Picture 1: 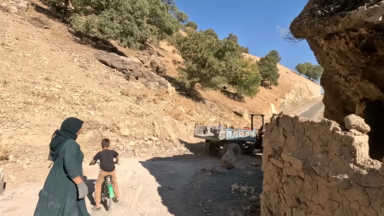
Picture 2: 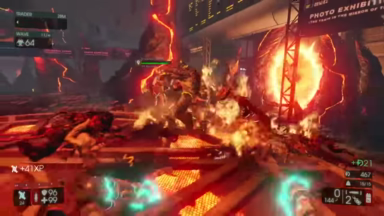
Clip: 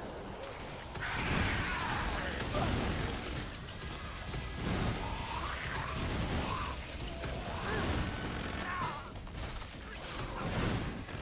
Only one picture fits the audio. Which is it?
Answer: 2